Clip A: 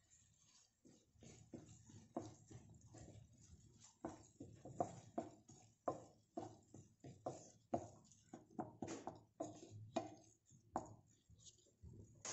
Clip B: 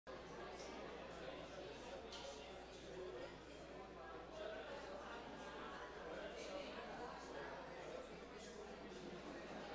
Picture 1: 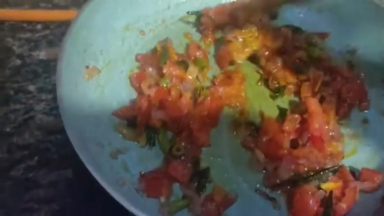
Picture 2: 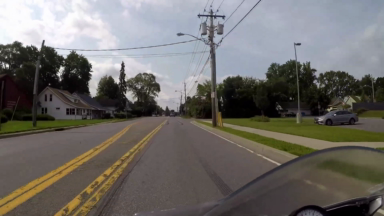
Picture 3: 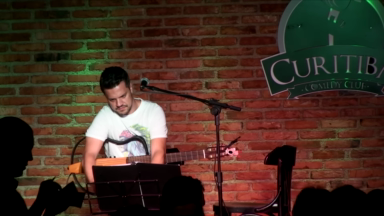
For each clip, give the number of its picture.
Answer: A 1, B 3